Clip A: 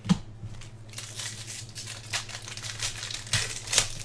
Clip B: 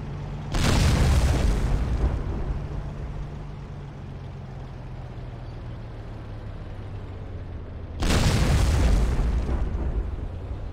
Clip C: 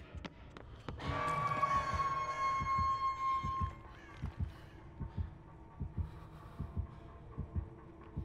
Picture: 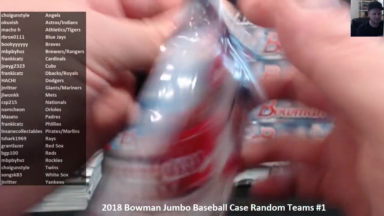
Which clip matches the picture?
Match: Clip A